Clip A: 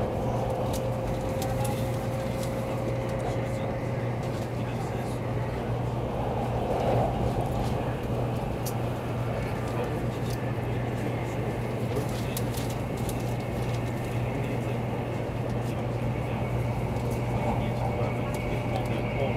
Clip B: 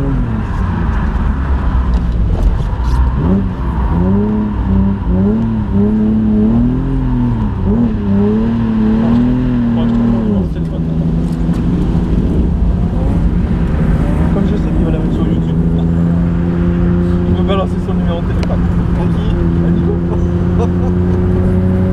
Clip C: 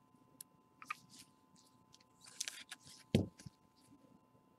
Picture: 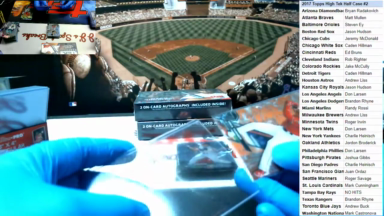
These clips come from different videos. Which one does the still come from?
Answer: C